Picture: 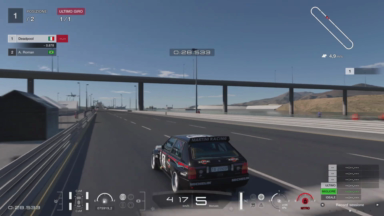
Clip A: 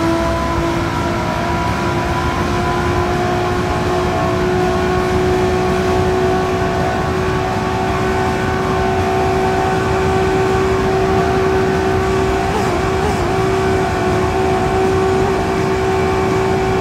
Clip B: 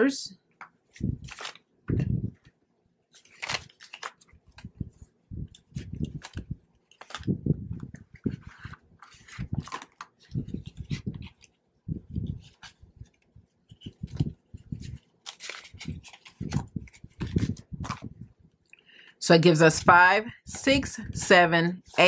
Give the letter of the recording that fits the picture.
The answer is A